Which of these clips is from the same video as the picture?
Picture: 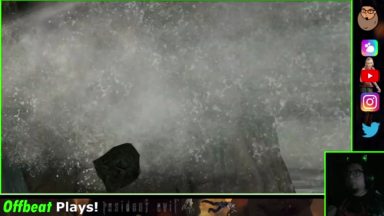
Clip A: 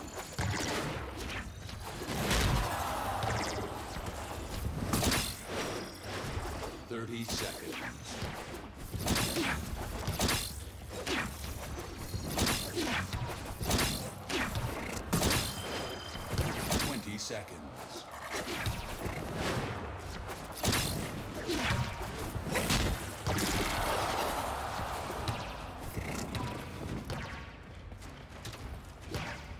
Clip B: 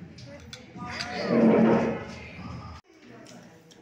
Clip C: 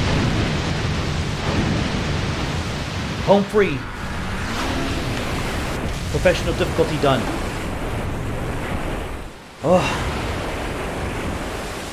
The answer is C